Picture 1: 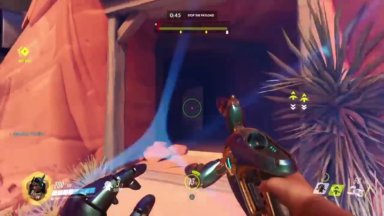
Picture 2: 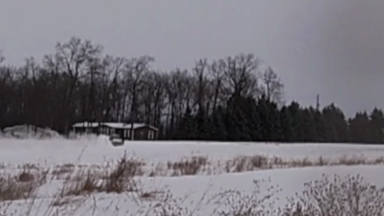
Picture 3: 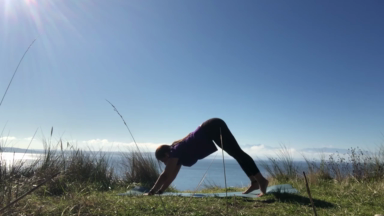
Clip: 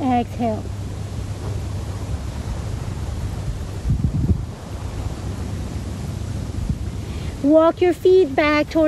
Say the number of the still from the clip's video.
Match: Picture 3